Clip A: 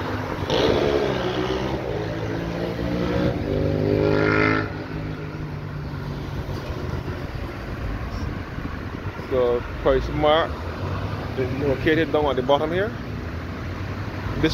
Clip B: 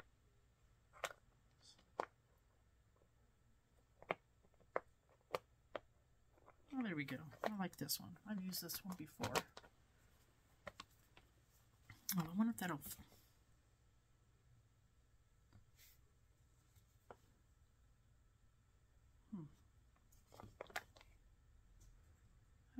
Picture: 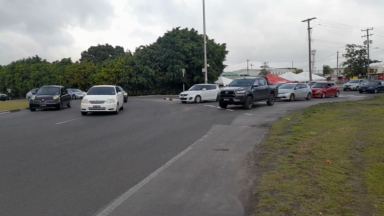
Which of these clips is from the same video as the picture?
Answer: A